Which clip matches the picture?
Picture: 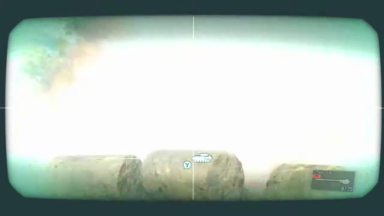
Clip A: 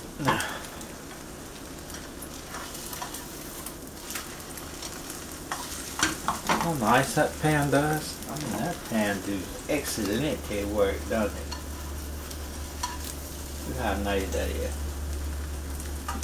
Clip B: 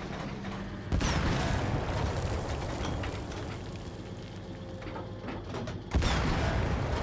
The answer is B